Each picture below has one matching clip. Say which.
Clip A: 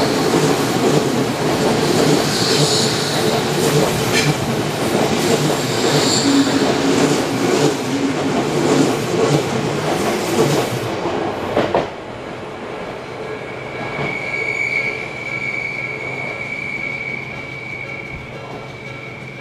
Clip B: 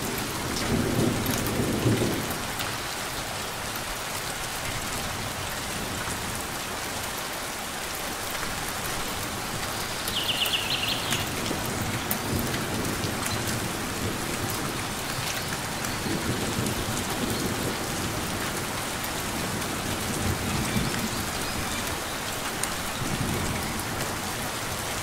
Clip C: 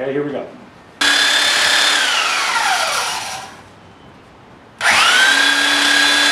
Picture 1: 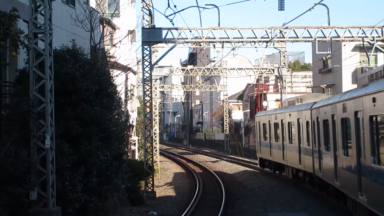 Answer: A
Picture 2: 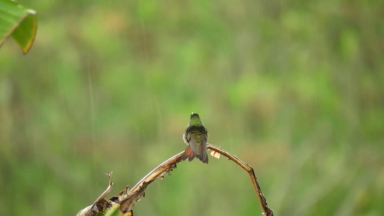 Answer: B